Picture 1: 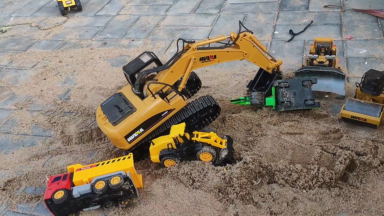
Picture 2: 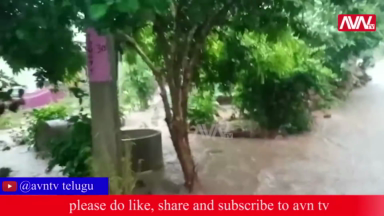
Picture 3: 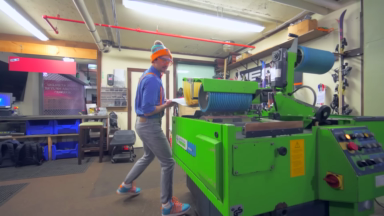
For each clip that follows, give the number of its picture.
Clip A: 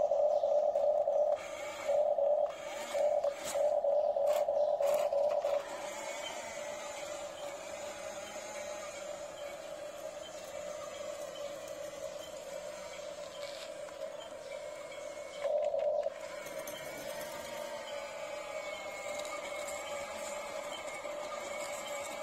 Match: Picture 1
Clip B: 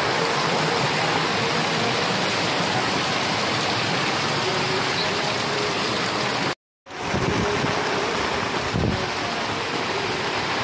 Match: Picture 2